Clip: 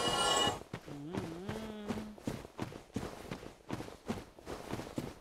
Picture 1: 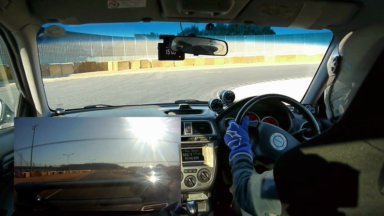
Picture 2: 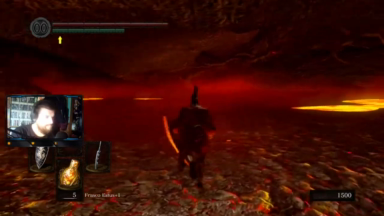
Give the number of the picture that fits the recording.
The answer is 2